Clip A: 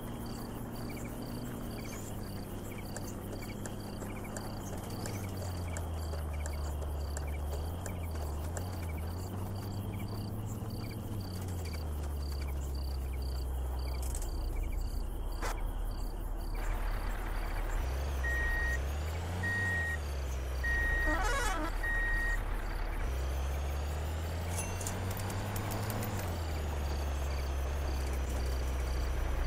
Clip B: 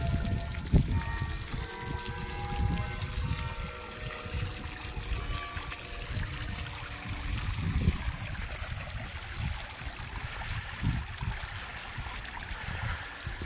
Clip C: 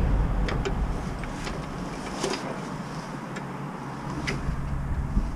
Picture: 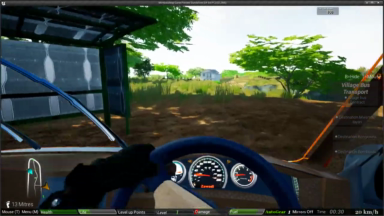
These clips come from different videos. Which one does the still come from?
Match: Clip A